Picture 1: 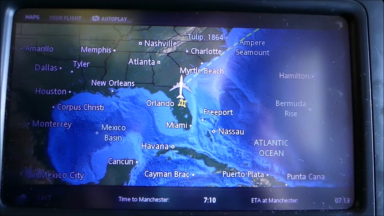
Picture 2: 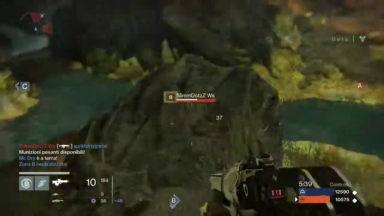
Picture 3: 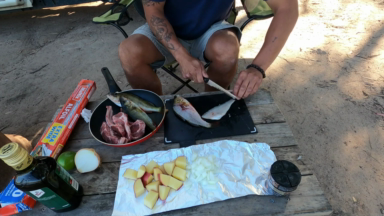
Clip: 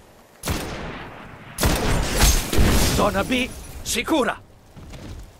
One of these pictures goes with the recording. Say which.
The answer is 2